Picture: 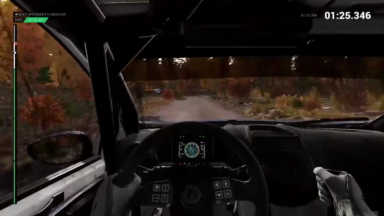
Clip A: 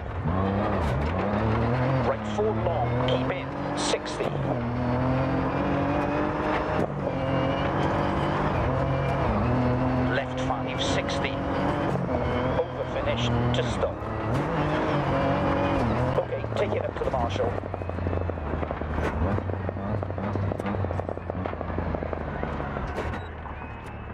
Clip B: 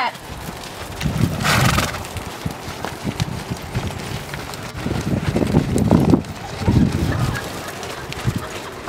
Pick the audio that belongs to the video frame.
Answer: A